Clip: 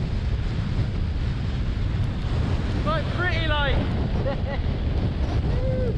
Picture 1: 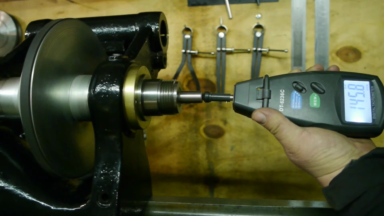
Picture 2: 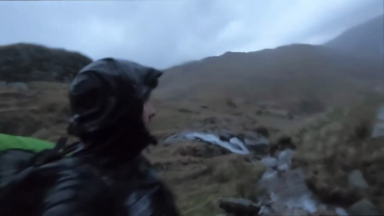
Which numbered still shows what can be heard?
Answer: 2